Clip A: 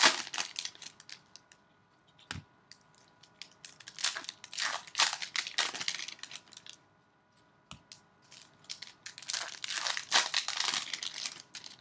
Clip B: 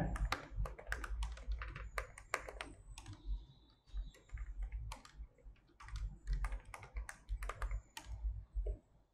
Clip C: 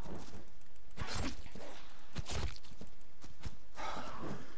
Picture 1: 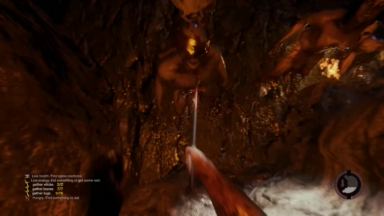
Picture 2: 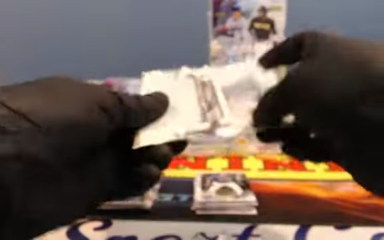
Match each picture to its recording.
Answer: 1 C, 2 A